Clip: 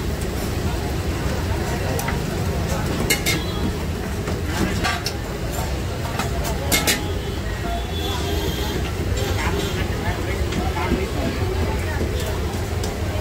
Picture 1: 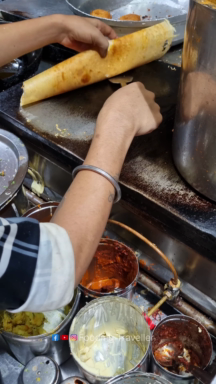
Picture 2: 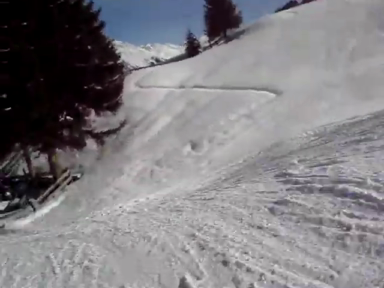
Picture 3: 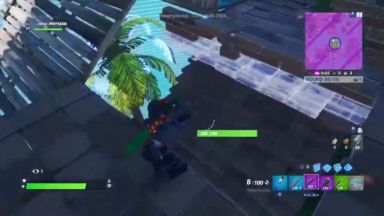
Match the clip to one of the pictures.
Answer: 1